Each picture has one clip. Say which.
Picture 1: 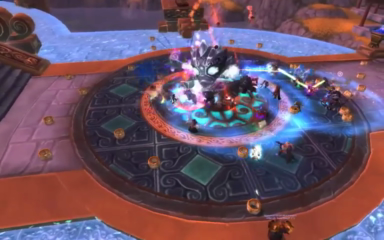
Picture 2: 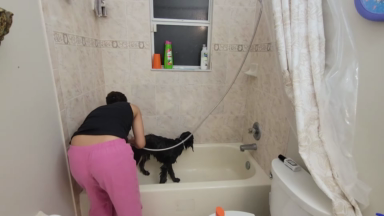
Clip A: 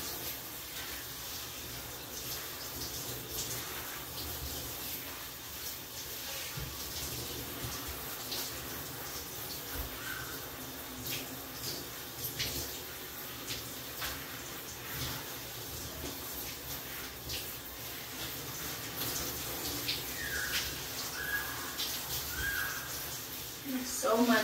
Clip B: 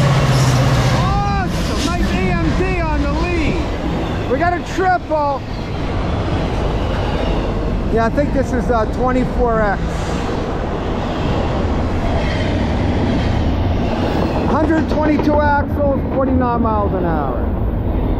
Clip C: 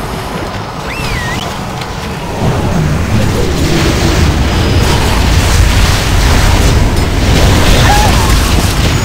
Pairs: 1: C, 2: A